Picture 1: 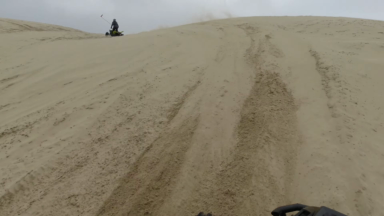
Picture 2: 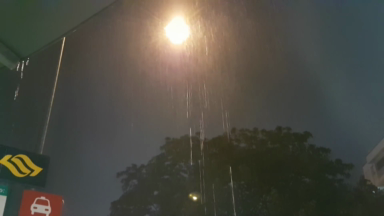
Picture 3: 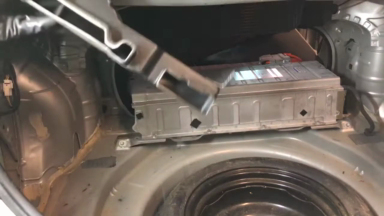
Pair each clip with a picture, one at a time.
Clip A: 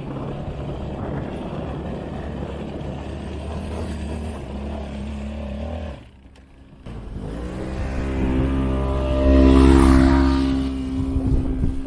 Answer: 1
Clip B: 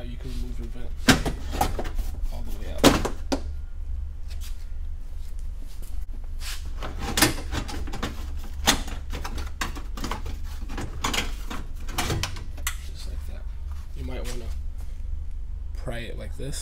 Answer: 3